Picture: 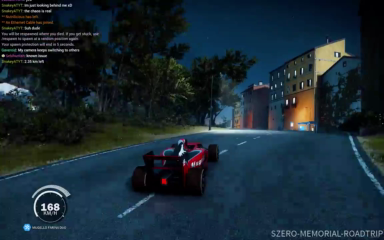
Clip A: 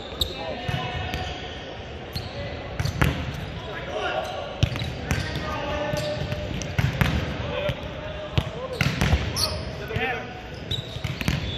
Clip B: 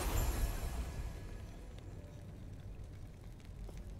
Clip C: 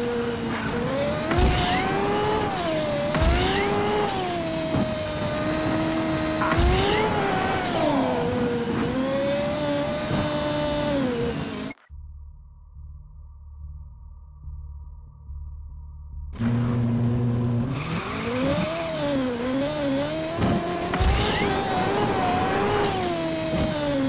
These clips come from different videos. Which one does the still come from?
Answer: C